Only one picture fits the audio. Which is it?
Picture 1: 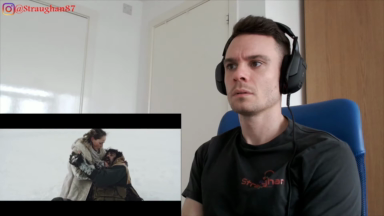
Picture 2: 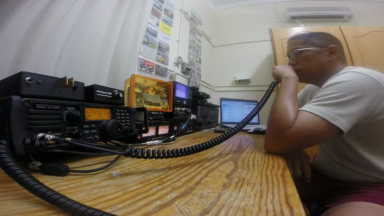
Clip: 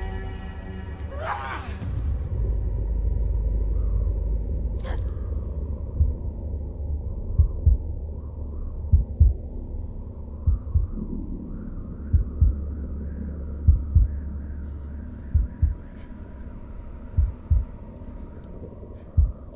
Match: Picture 1